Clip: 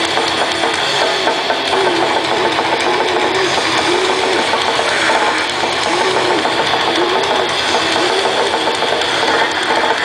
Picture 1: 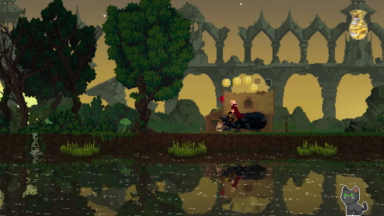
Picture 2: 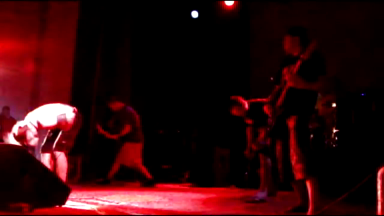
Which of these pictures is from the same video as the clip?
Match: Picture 2